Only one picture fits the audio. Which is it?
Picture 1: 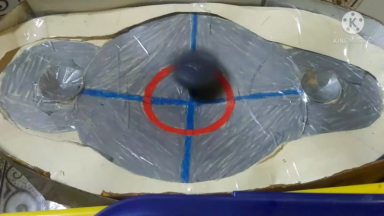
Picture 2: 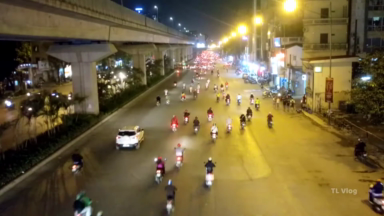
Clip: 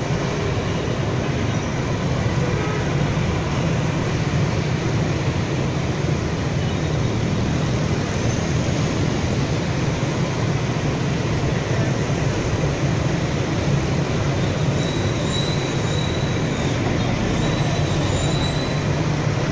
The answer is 2